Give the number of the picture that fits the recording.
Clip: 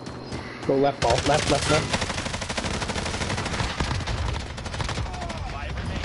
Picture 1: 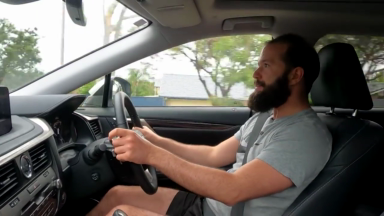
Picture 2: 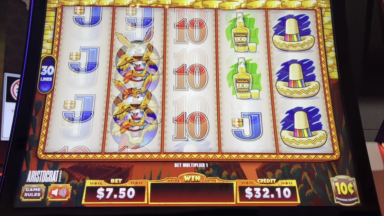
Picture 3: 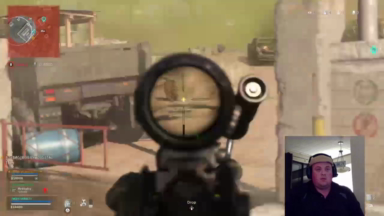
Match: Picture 3